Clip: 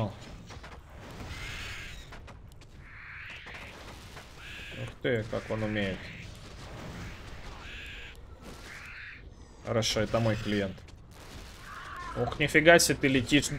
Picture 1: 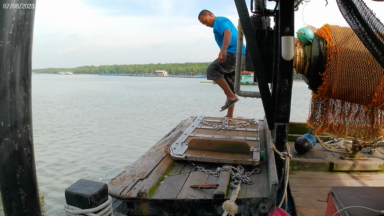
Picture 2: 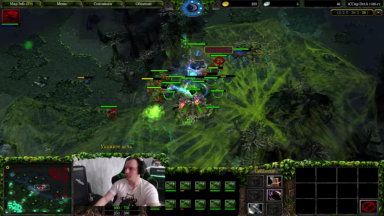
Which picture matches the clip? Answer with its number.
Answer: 2